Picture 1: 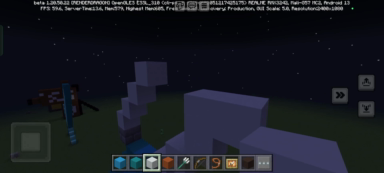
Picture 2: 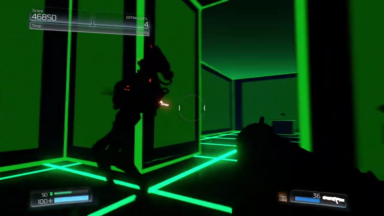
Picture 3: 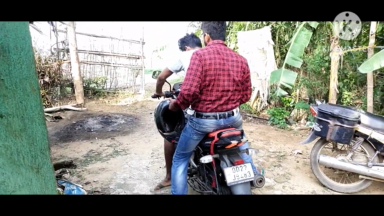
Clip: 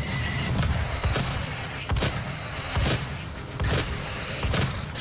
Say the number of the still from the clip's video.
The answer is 2